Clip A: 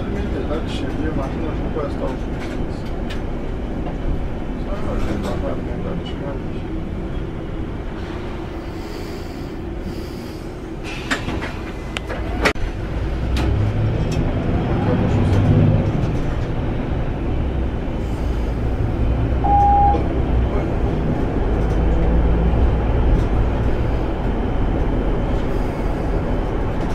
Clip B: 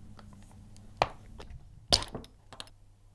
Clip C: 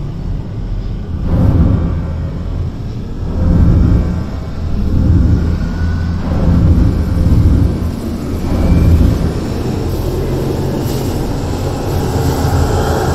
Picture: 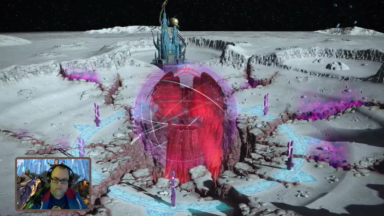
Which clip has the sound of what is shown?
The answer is C